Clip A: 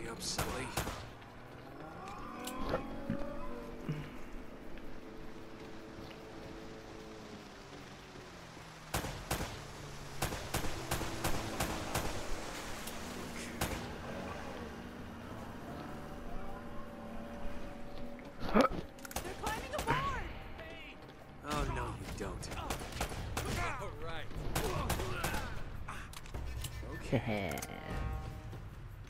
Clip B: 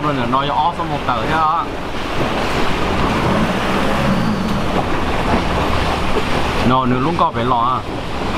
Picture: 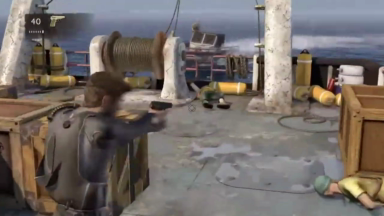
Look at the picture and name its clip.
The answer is A